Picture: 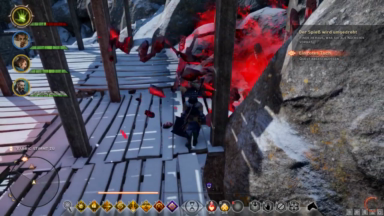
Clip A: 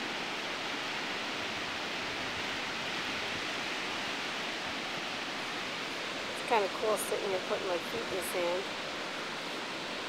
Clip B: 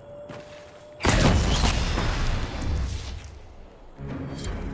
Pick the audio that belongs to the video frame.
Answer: B